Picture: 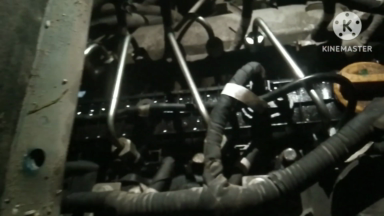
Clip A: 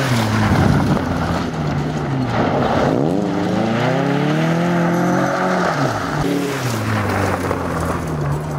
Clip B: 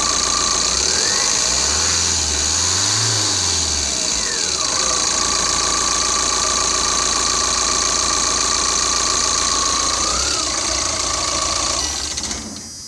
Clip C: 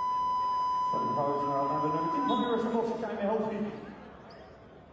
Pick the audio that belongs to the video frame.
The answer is B